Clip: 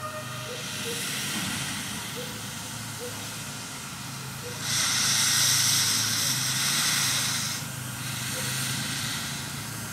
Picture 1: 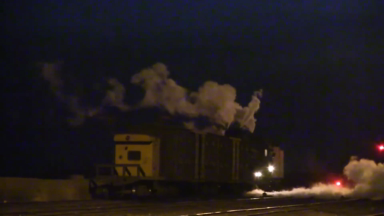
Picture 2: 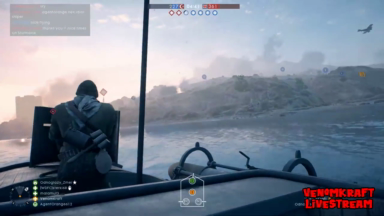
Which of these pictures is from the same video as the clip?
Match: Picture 1